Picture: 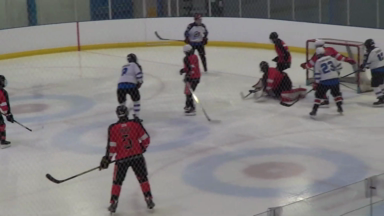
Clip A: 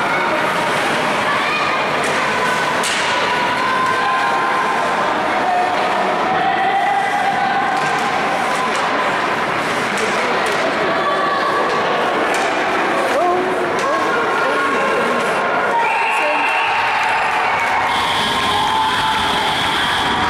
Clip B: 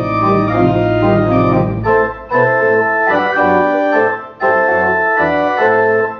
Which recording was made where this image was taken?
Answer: A